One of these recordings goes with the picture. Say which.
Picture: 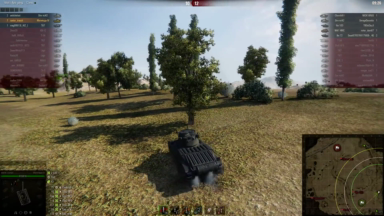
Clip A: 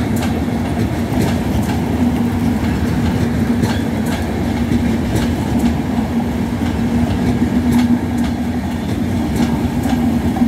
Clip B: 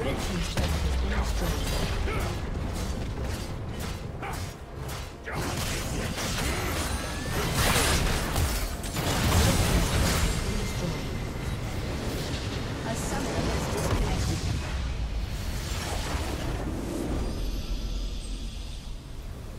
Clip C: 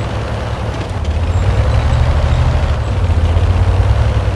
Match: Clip C